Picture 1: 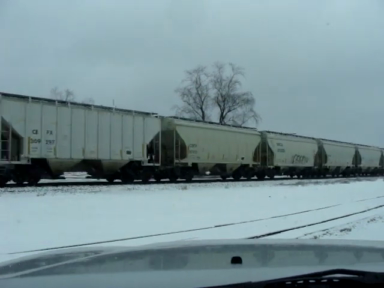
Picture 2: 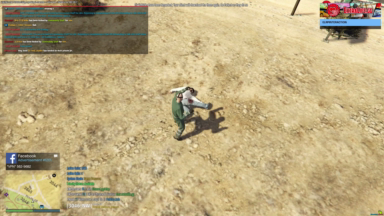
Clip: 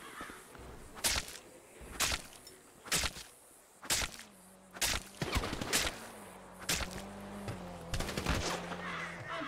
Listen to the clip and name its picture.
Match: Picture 2